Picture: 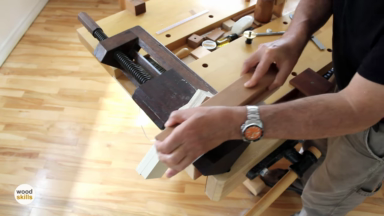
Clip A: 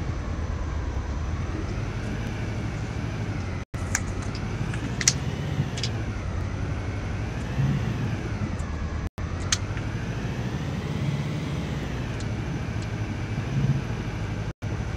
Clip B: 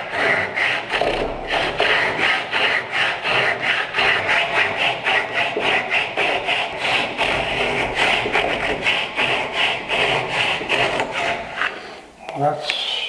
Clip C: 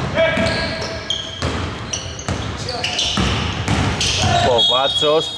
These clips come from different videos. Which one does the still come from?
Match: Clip B